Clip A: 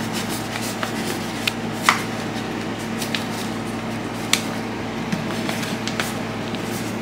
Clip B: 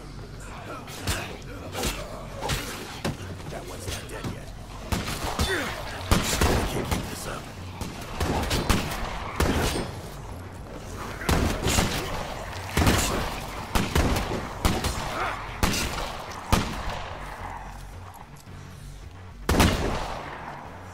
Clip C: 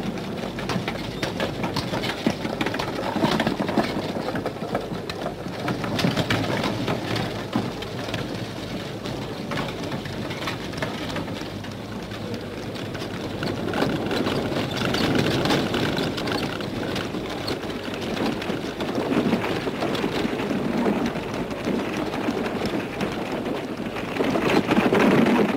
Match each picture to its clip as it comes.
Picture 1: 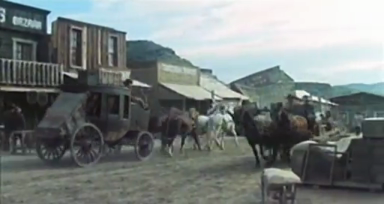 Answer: C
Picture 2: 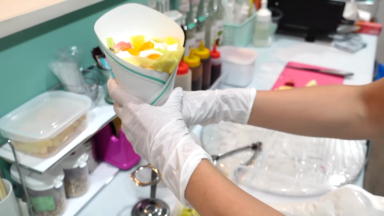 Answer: A